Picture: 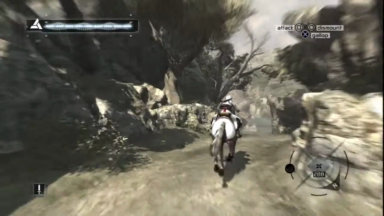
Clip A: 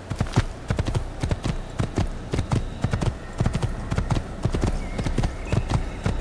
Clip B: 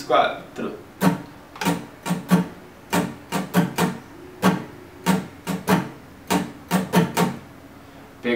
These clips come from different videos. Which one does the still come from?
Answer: A